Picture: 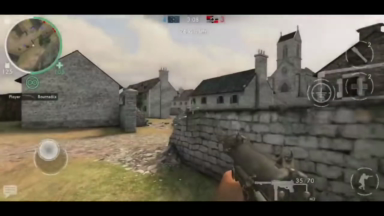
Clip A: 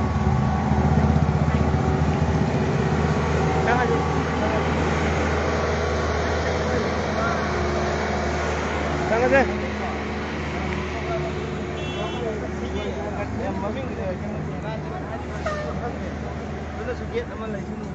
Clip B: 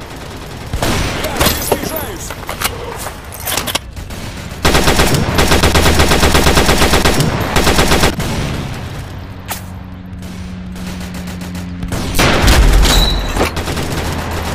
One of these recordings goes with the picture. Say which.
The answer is B